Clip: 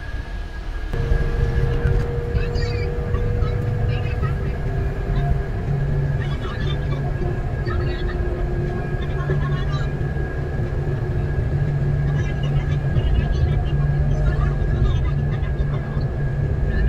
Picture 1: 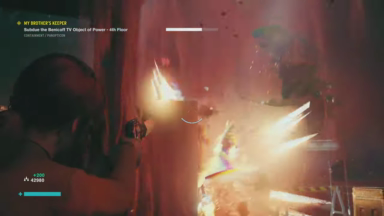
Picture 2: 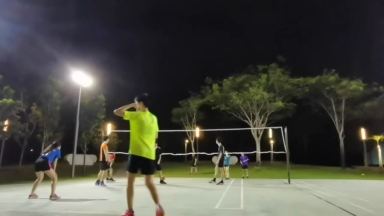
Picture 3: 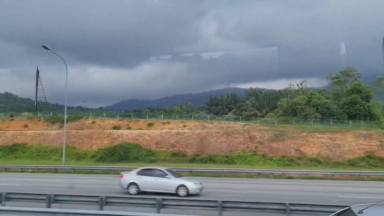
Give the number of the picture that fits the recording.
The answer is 3